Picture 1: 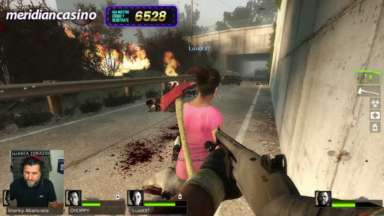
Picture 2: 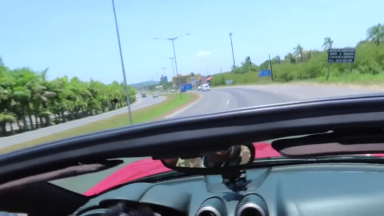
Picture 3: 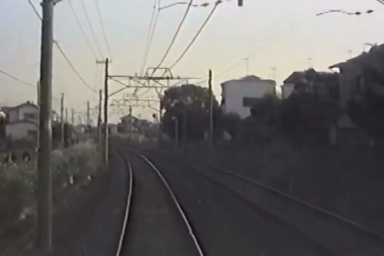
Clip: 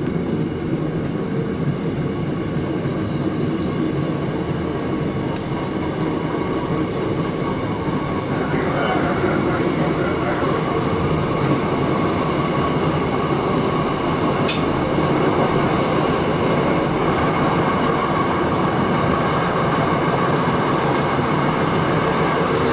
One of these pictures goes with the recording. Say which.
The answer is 3